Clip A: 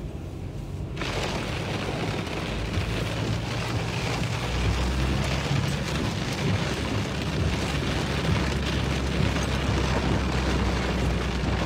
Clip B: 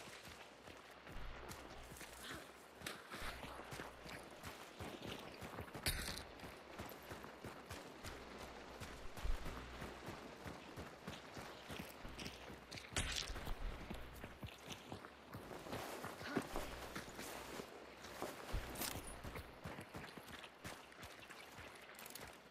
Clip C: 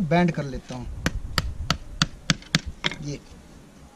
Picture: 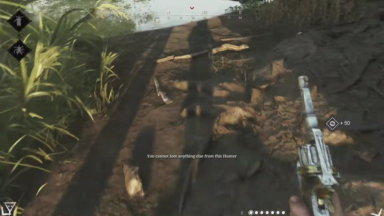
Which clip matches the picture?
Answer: B